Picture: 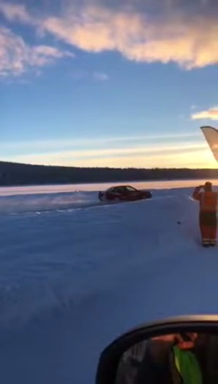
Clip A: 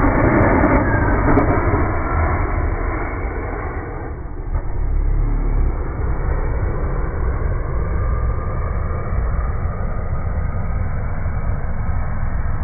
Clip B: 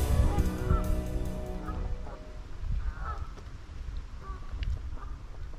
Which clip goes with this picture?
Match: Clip A